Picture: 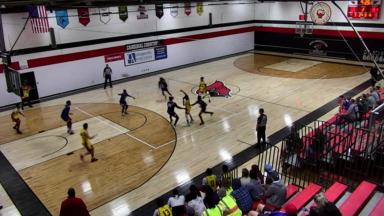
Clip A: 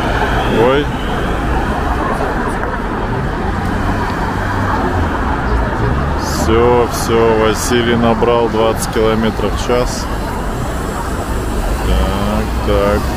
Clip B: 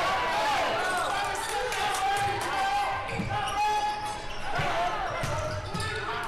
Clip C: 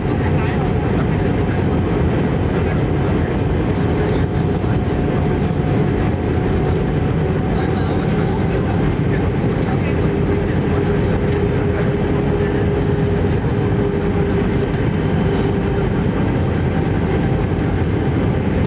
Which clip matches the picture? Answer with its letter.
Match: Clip B